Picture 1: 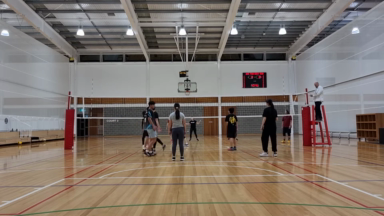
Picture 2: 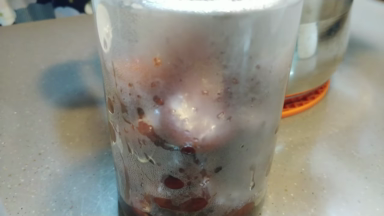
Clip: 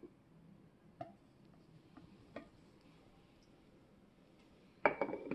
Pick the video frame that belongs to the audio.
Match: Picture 2